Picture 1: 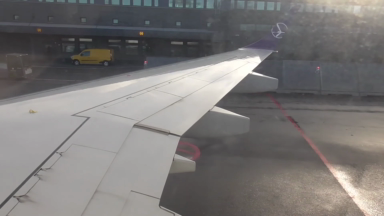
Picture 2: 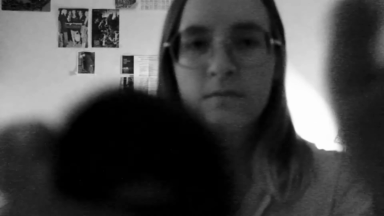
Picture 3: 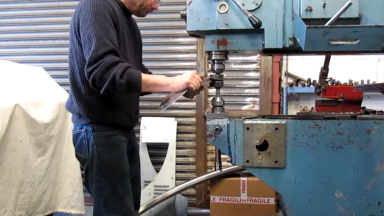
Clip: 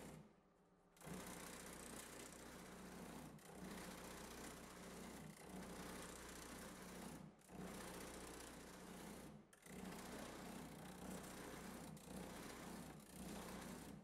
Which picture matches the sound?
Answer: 3